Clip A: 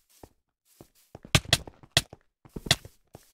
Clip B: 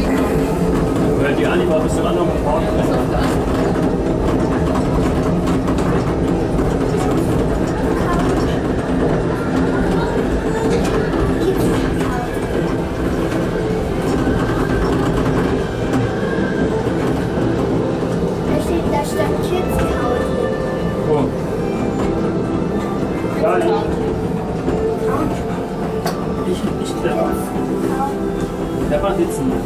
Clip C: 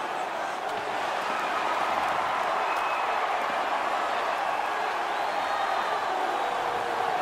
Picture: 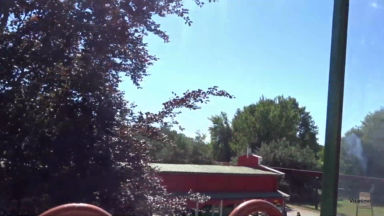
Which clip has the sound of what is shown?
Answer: B